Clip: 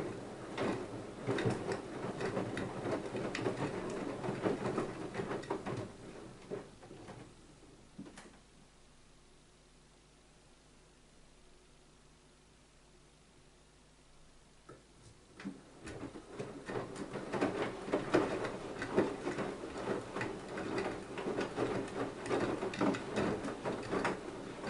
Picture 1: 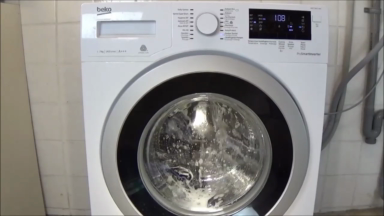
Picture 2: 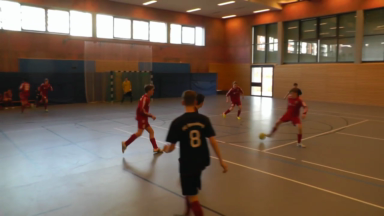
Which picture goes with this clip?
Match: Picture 1